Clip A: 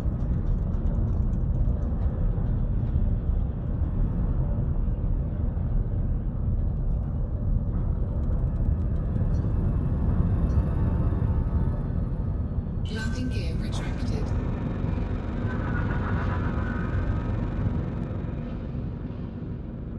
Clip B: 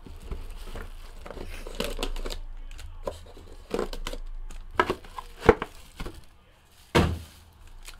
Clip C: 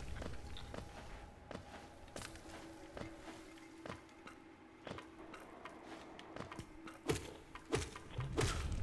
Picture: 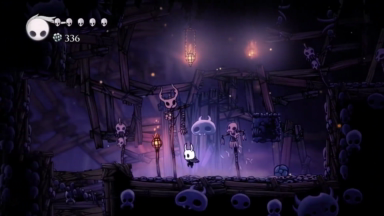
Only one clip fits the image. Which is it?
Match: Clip C